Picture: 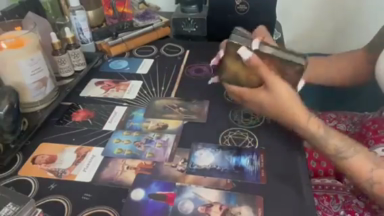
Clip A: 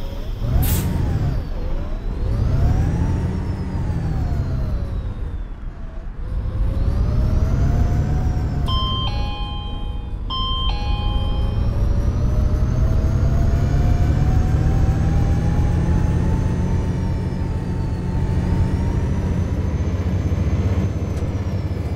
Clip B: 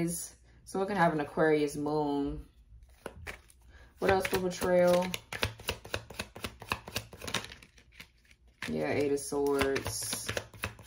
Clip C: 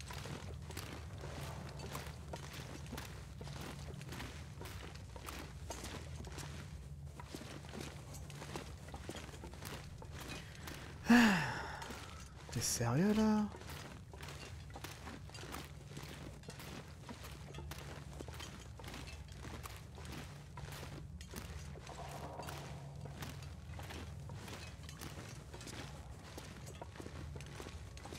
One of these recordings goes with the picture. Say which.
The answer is B